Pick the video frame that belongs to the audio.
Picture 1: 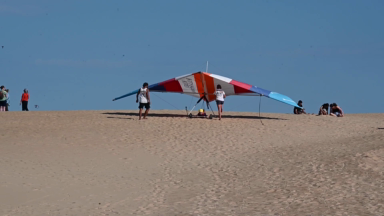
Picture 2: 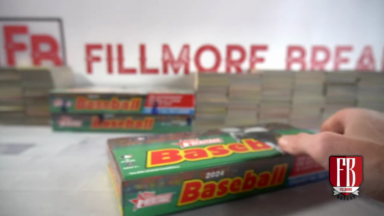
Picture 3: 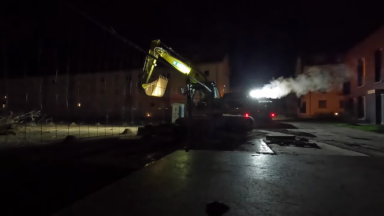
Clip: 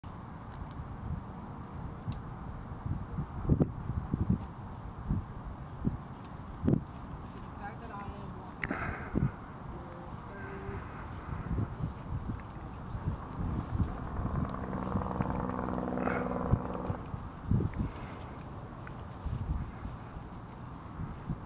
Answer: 1